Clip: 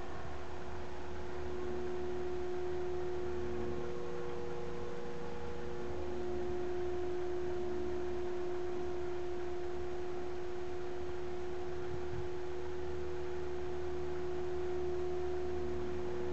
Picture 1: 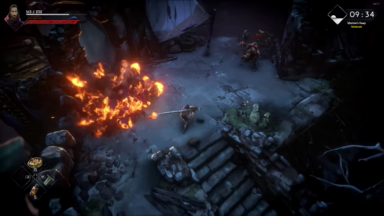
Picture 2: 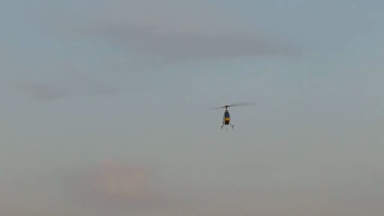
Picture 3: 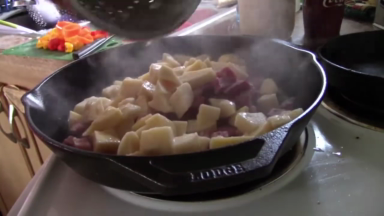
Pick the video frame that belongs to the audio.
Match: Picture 2